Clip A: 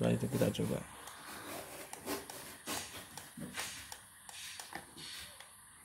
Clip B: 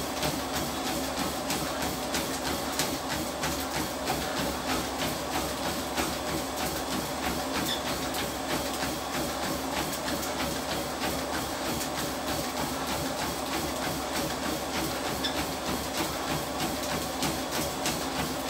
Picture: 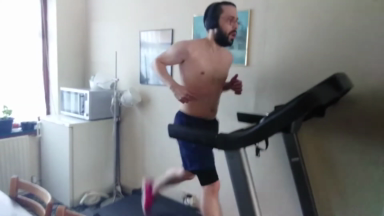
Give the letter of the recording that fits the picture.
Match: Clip B